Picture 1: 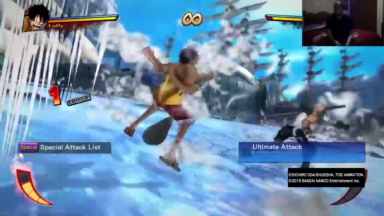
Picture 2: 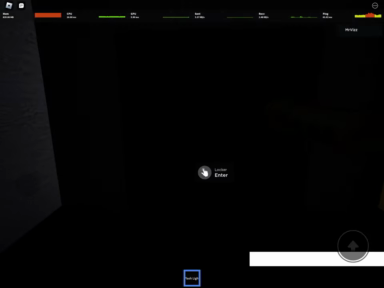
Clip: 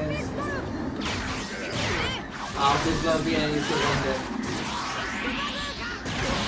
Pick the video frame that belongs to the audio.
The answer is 1